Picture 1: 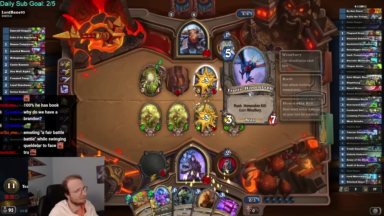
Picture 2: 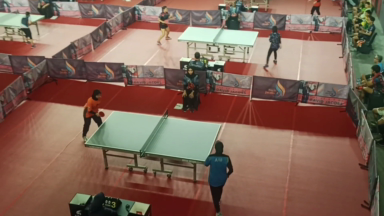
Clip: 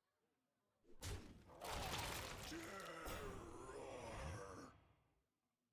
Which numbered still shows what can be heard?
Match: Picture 1